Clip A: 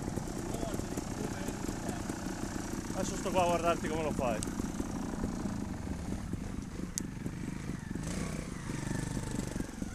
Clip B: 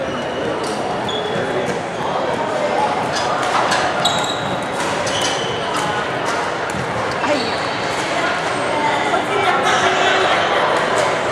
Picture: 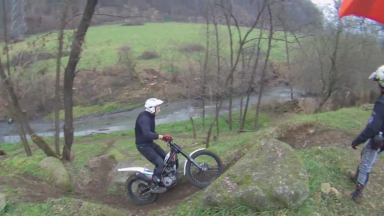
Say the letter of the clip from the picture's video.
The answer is A